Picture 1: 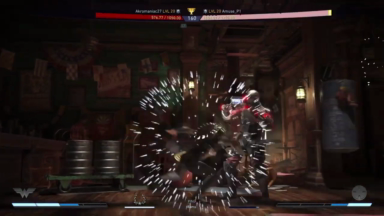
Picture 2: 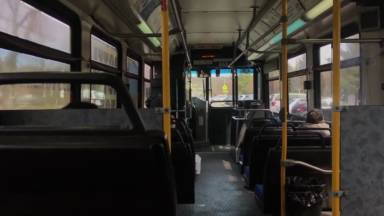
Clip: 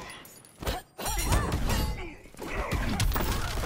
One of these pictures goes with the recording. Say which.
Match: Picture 1